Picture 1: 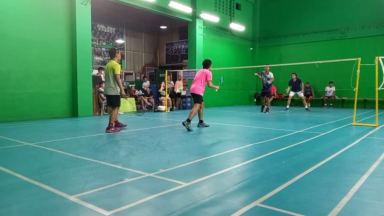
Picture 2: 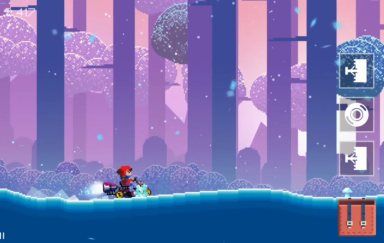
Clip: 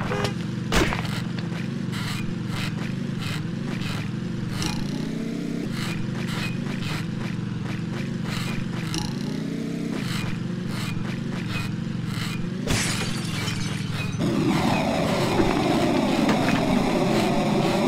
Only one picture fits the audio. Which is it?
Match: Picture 2